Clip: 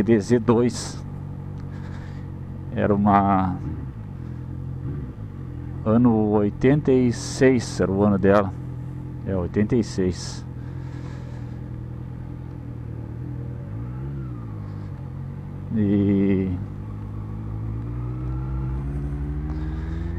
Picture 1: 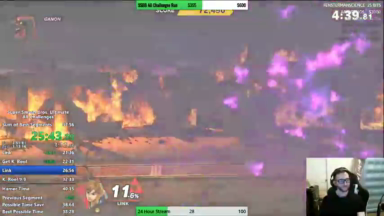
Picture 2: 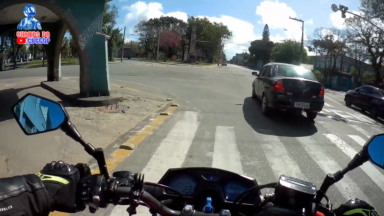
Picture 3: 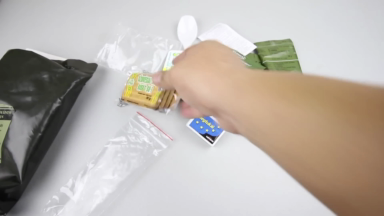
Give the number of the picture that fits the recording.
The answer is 2